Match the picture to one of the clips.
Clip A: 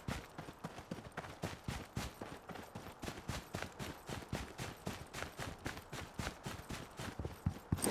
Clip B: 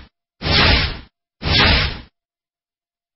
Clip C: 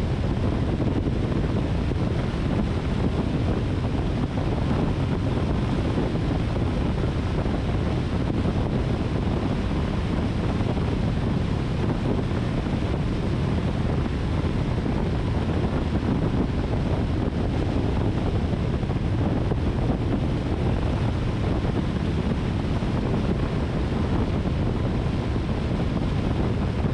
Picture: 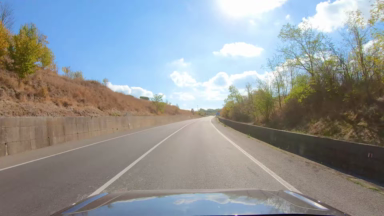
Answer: C